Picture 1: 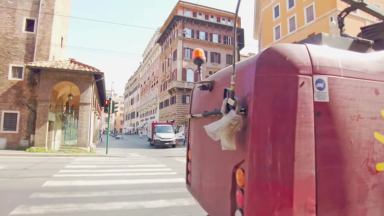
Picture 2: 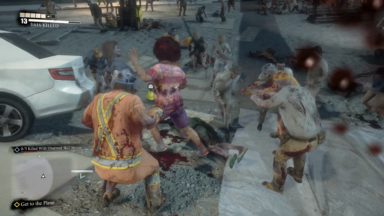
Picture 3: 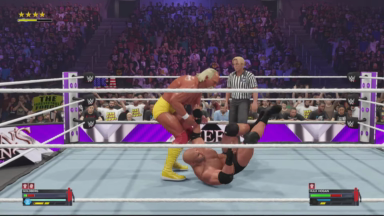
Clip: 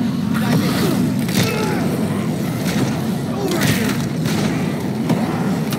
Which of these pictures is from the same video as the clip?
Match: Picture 2